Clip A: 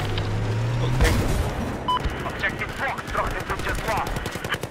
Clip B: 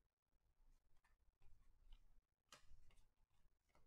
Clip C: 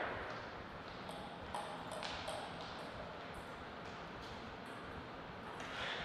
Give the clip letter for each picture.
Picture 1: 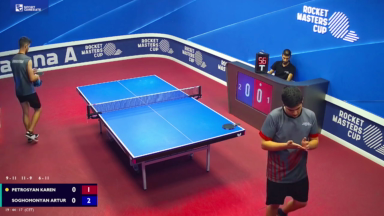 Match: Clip C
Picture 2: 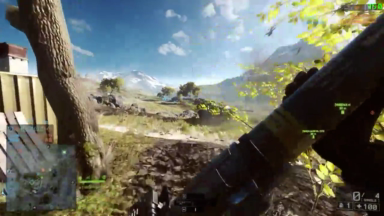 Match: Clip A